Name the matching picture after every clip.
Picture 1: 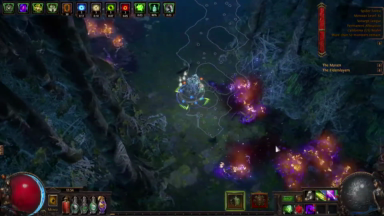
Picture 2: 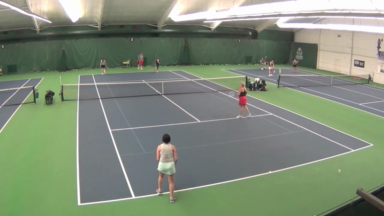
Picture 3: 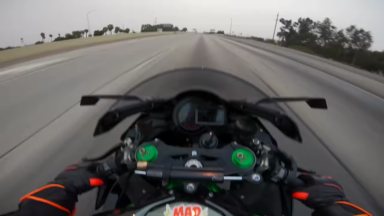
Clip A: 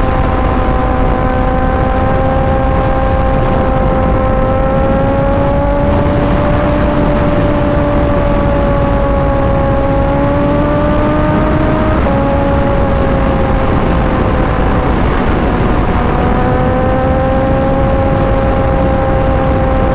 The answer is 3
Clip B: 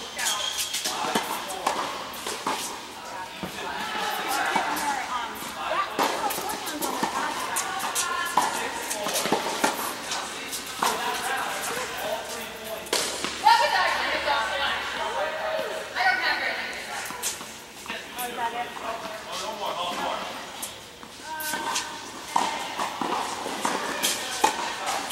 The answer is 2